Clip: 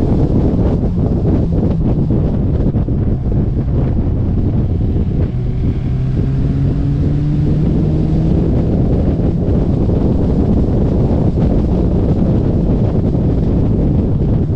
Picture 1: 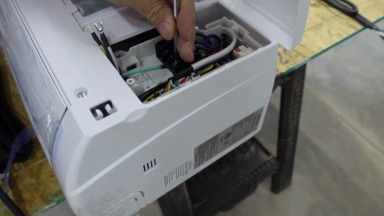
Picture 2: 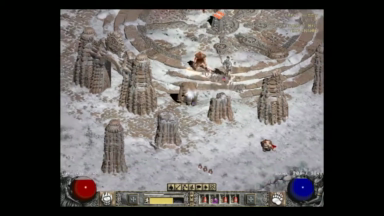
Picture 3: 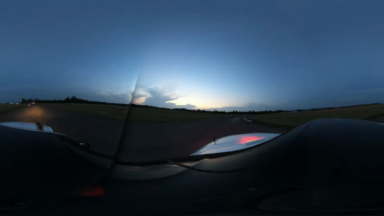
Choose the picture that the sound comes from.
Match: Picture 3